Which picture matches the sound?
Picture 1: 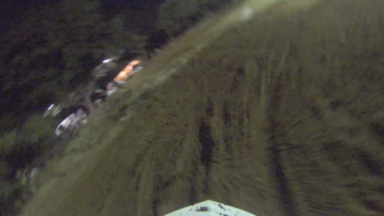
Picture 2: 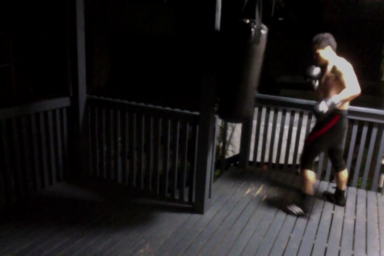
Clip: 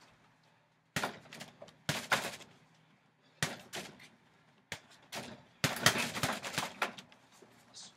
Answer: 2